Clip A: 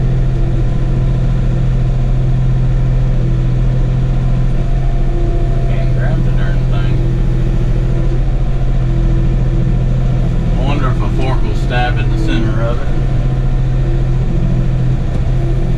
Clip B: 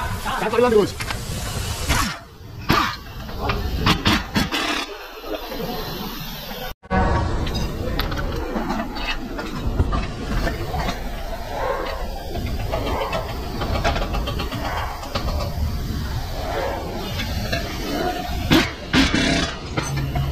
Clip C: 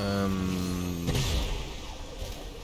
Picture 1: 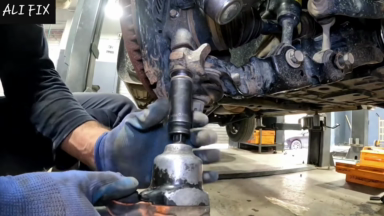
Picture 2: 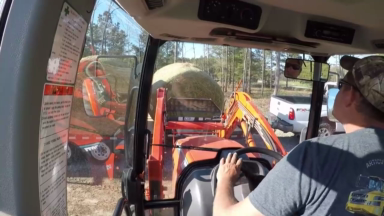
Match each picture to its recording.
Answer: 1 B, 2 A